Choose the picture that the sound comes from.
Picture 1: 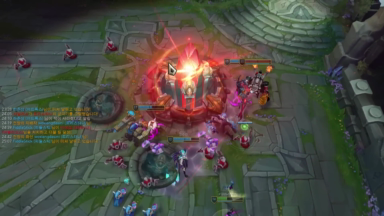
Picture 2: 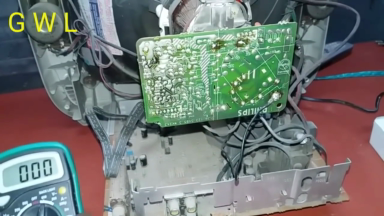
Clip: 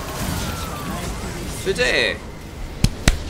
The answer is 1